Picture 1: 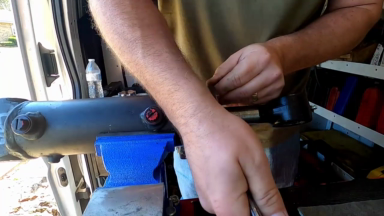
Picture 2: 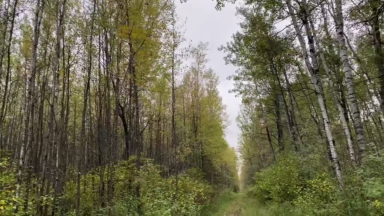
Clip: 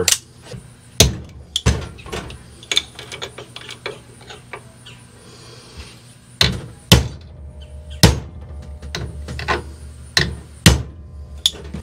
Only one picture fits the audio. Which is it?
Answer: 1